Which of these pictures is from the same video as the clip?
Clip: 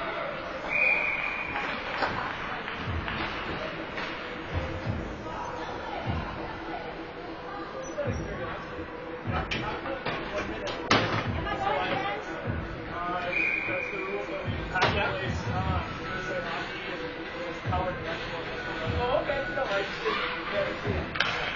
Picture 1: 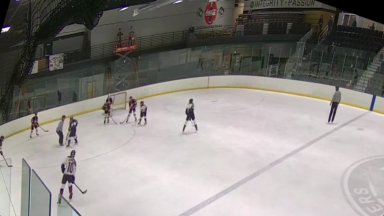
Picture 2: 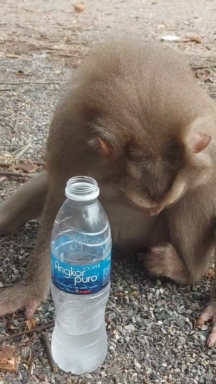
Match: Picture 1